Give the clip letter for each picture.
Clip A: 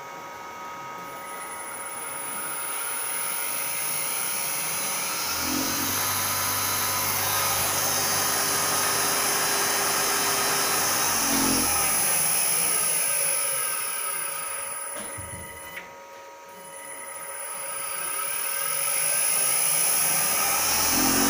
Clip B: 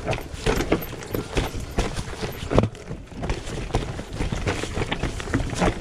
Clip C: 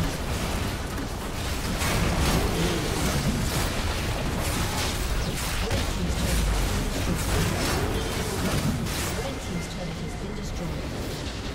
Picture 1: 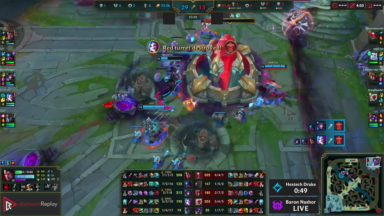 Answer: C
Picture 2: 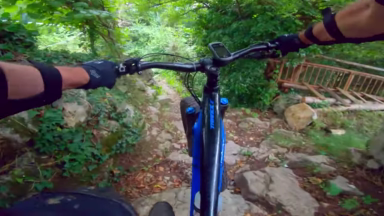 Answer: B